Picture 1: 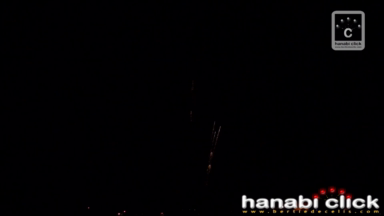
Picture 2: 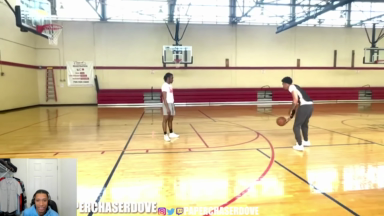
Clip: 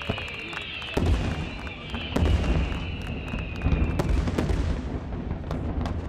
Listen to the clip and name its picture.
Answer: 1